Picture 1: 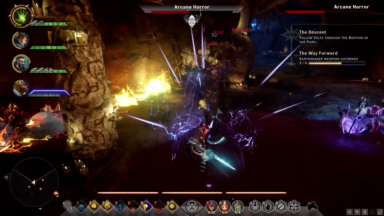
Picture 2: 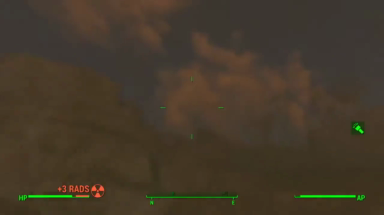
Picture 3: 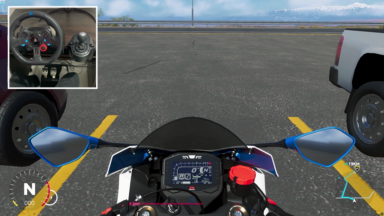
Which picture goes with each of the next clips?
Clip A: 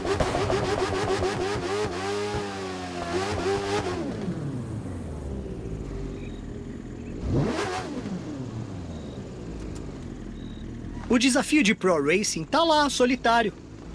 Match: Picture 3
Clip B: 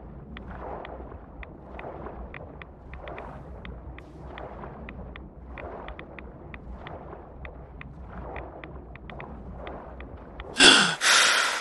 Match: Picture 2